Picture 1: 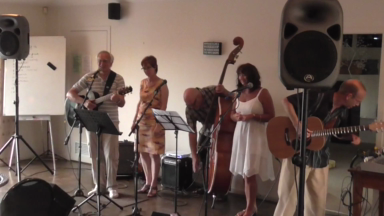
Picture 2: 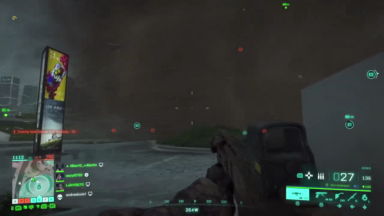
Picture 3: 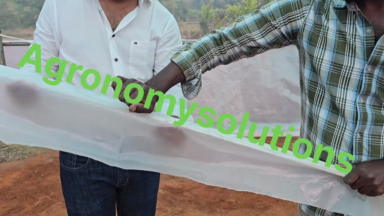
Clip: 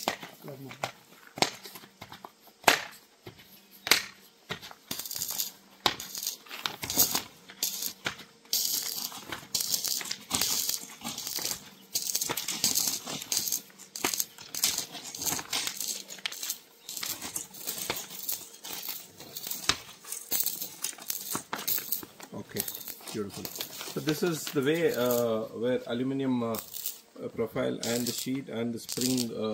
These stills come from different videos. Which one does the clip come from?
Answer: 3